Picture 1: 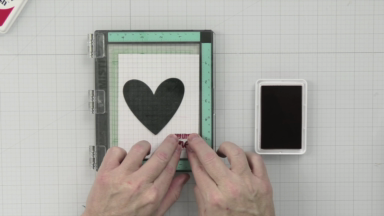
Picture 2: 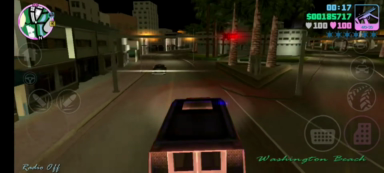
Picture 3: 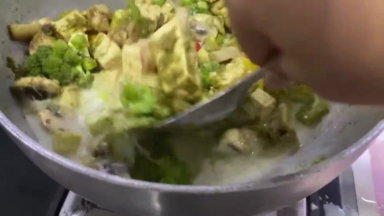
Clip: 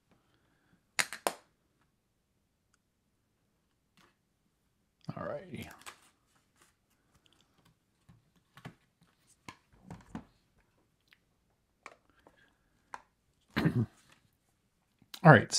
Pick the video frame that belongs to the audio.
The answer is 1